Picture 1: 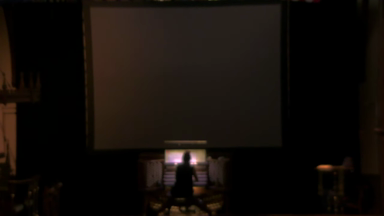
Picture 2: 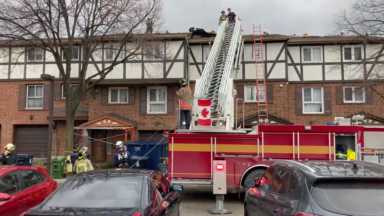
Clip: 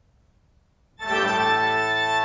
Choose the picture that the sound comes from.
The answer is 1